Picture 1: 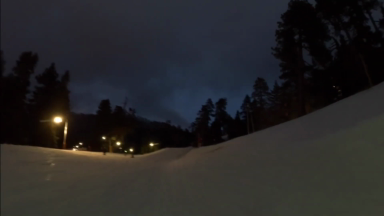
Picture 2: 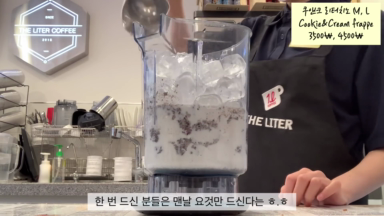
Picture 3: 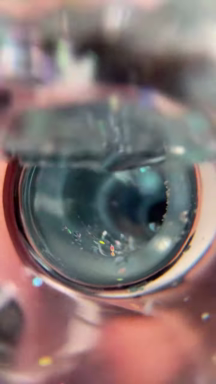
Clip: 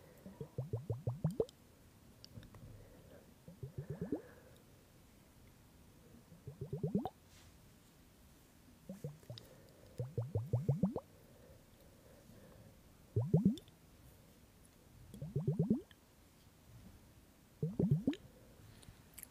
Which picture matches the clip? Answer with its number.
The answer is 3